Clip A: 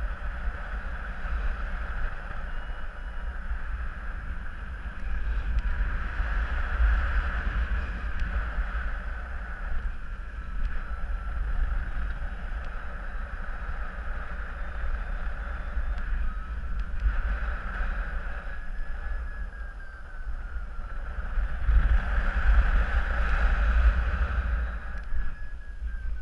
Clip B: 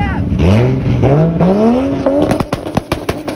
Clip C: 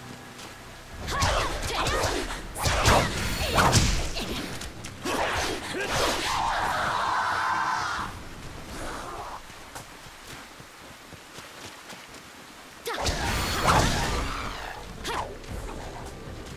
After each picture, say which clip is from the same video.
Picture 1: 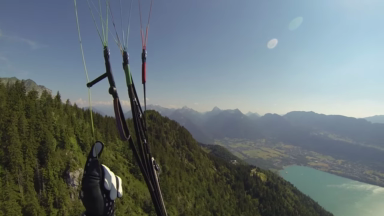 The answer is A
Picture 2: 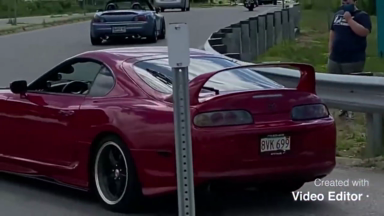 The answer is B